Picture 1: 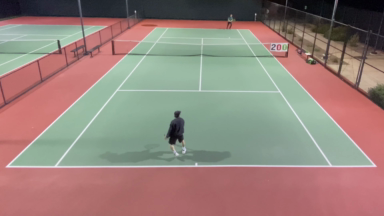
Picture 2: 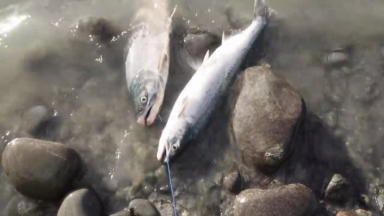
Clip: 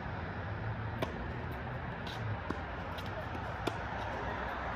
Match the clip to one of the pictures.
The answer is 1